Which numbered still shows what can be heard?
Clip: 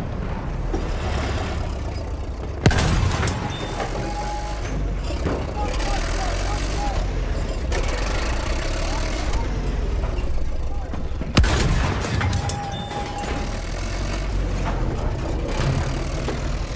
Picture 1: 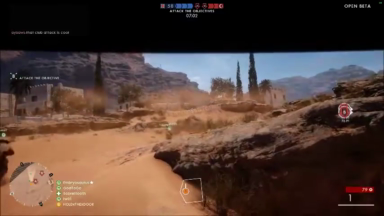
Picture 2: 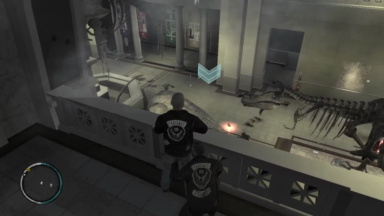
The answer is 1